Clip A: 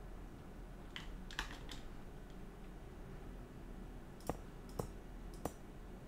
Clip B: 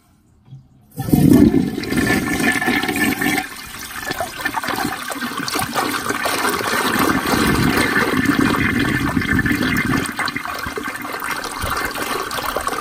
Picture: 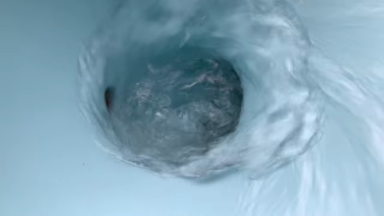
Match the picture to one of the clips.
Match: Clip B